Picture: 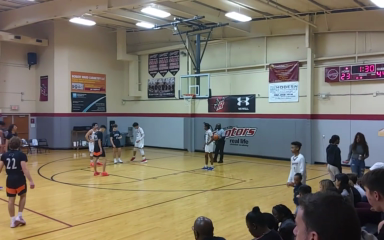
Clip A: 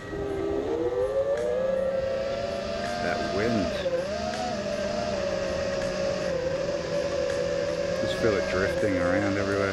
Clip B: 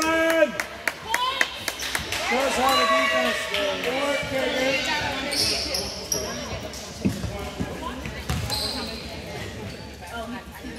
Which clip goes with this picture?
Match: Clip B